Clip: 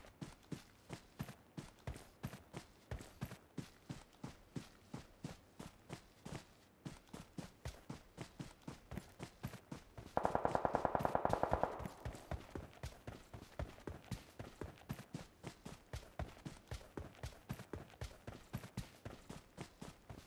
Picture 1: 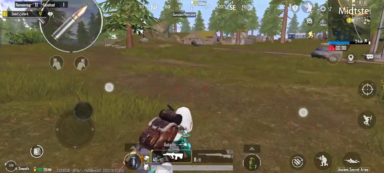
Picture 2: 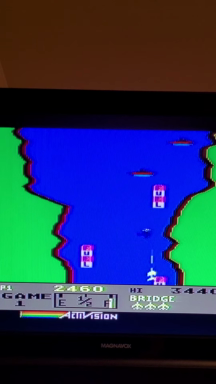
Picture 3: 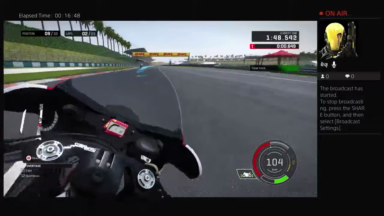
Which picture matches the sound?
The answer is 1